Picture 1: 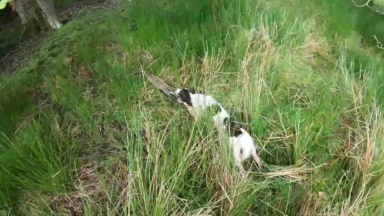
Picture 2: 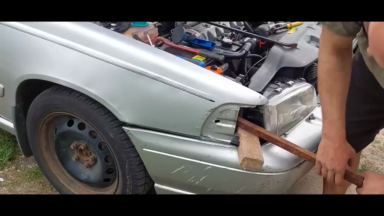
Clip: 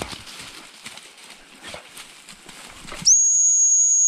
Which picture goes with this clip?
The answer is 1